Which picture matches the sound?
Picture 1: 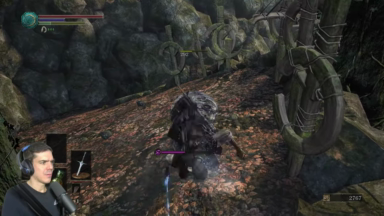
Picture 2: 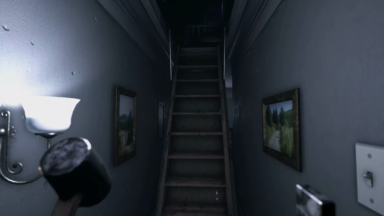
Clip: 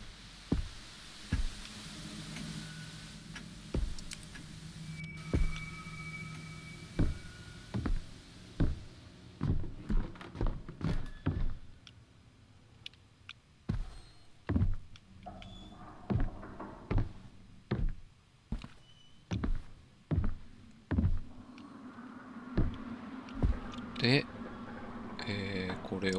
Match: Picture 2